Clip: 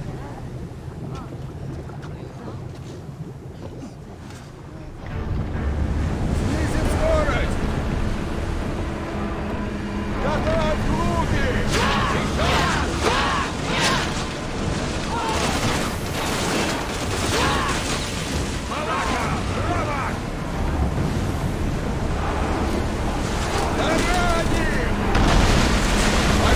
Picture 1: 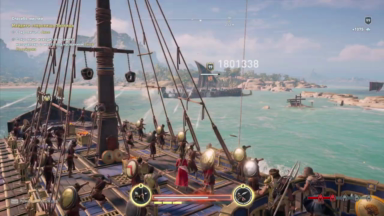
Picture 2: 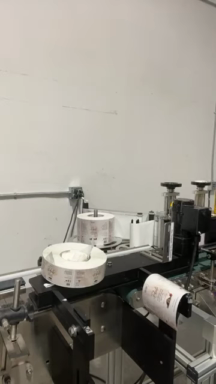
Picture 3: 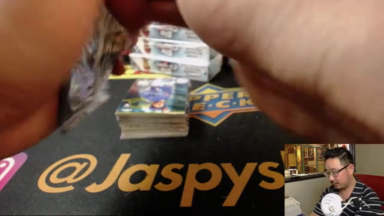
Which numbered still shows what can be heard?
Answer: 1